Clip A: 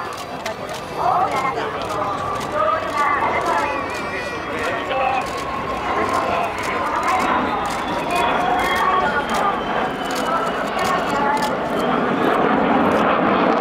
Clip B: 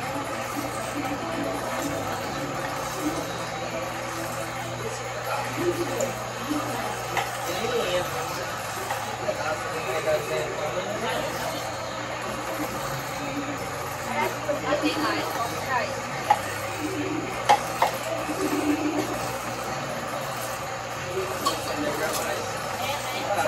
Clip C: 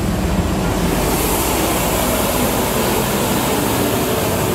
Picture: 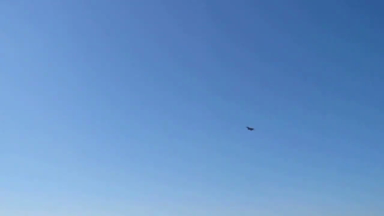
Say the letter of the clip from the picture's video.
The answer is A